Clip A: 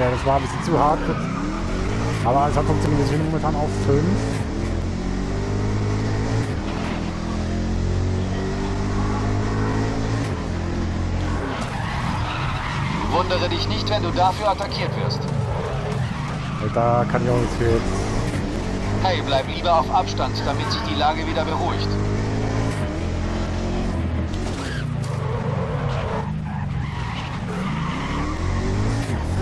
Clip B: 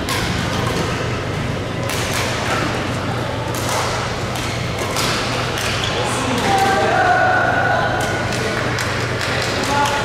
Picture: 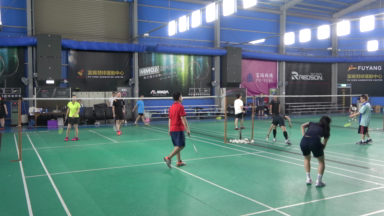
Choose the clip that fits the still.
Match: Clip B